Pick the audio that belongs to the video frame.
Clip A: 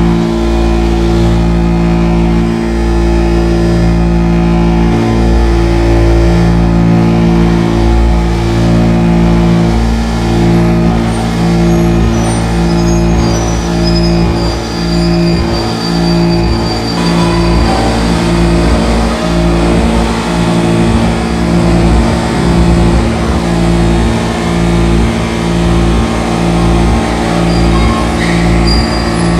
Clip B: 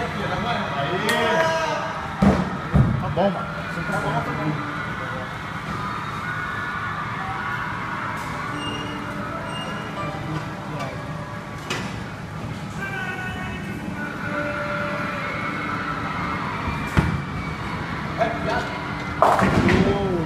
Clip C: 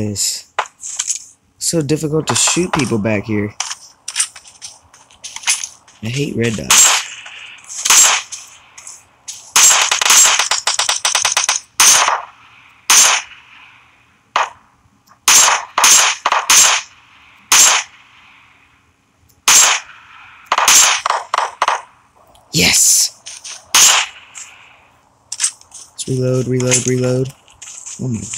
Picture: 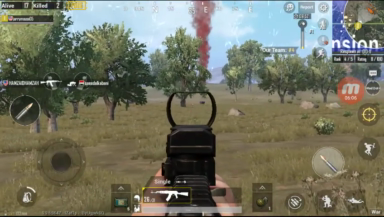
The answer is C